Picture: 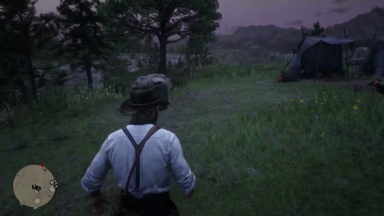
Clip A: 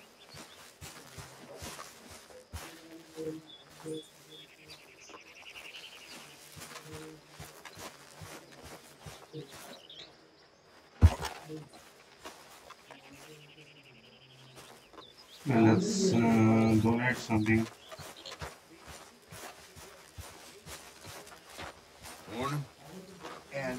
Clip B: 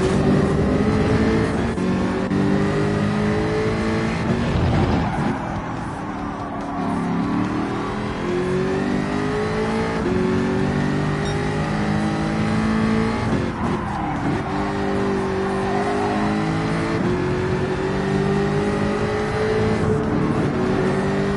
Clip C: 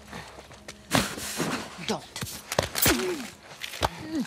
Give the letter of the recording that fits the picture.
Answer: A